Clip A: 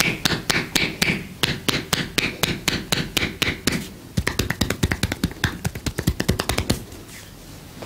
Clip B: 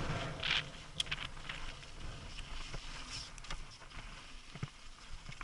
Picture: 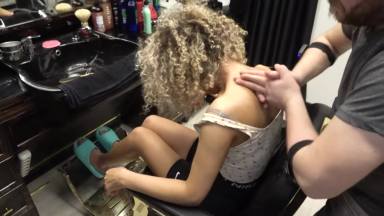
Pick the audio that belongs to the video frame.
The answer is A